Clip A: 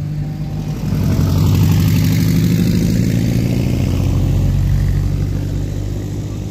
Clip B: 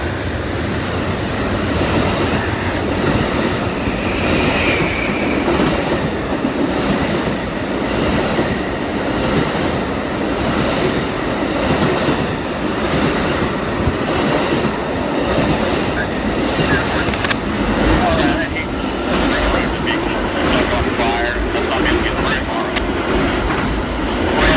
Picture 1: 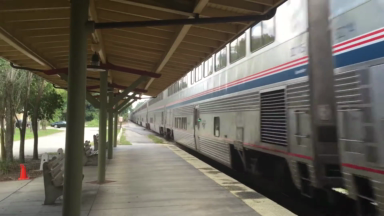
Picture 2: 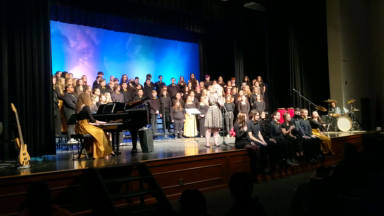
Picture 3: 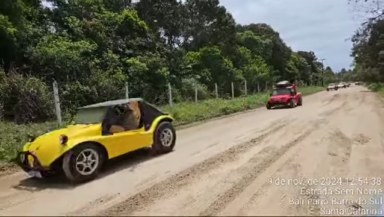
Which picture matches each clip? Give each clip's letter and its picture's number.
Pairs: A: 3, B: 1